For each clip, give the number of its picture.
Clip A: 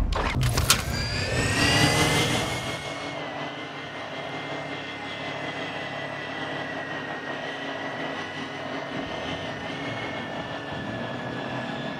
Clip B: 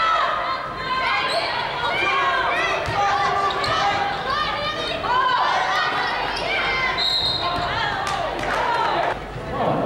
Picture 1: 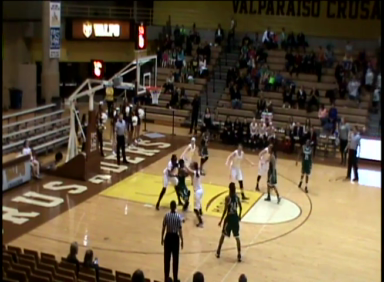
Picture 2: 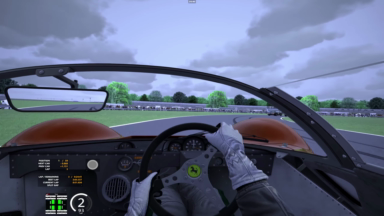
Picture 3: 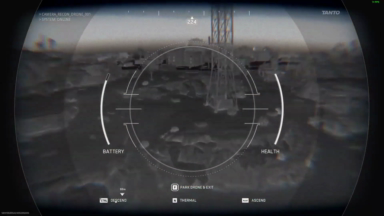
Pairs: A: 3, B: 1